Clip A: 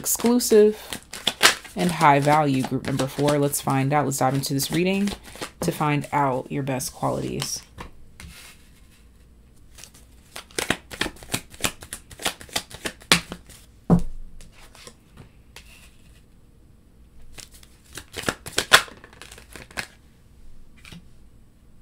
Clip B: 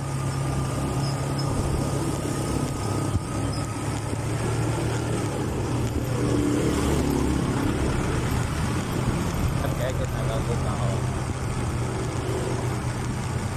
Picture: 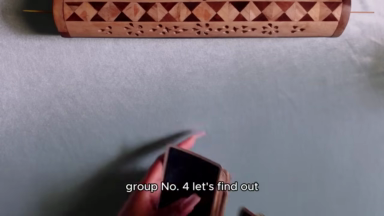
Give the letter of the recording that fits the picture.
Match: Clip A